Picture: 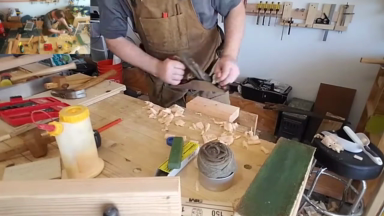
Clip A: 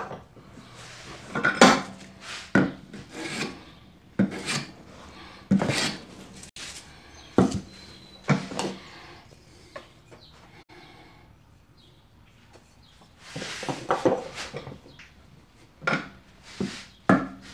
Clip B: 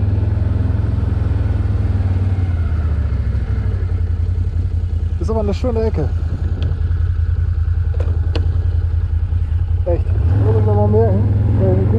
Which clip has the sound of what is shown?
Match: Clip A